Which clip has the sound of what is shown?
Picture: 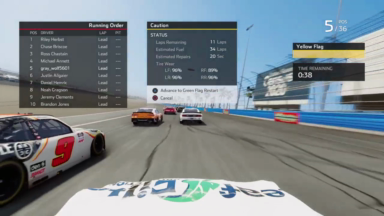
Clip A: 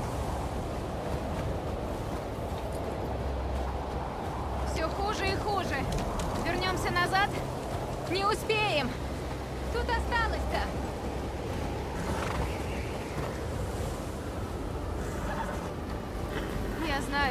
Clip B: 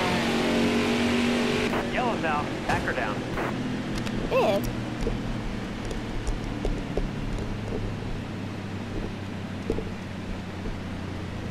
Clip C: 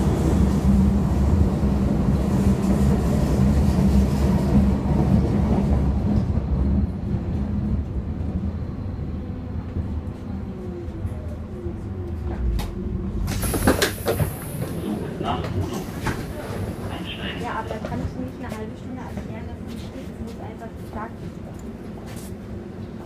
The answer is B